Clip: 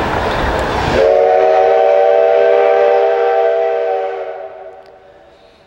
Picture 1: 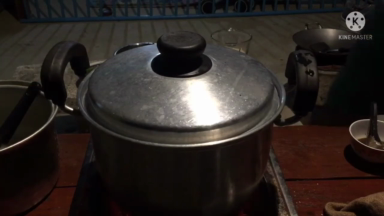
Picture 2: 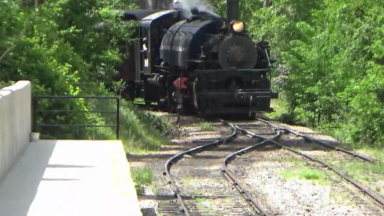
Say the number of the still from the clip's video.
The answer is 2